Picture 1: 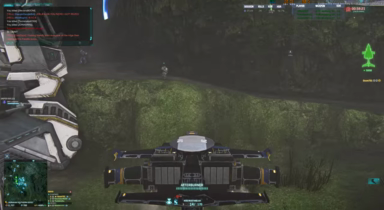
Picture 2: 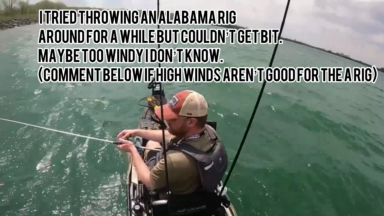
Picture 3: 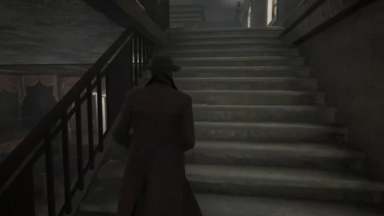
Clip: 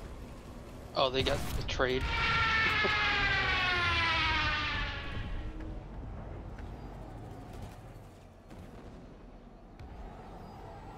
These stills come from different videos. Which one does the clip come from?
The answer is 1